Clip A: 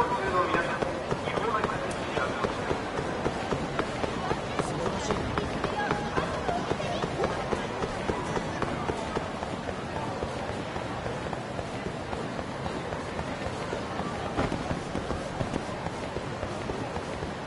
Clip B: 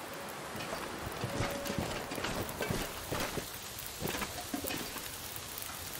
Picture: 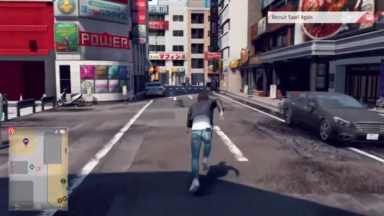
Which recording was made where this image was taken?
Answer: A